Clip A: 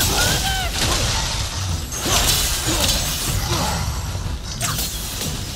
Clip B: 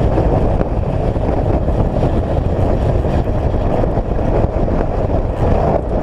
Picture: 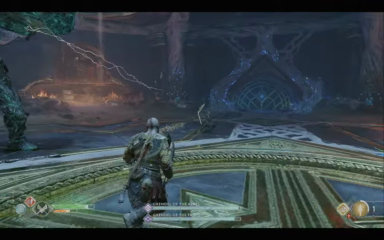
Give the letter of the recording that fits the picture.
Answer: A